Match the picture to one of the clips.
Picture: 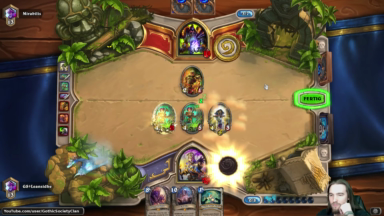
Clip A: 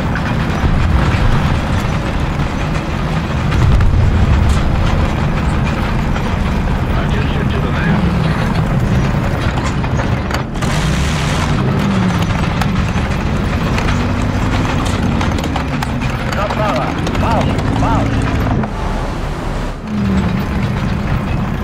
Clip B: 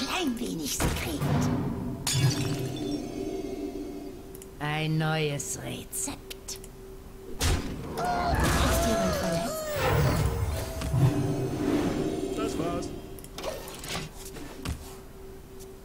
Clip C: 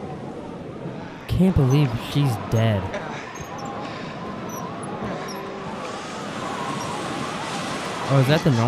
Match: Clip B